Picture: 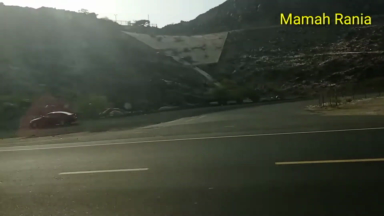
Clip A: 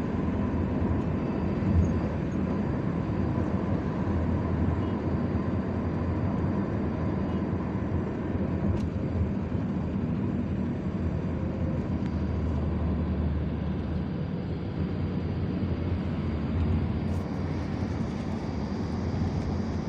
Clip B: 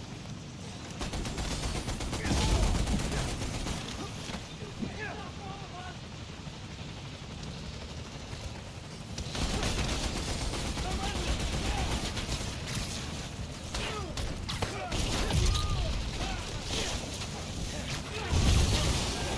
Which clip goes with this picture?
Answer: A